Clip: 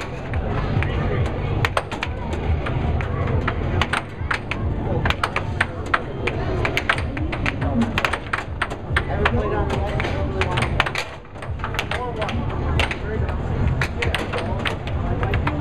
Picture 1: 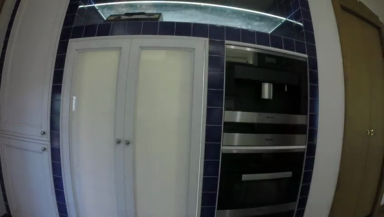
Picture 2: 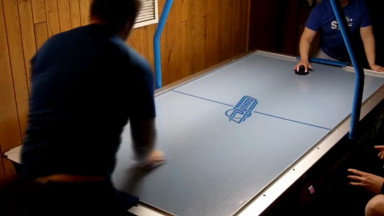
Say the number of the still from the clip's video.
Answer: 2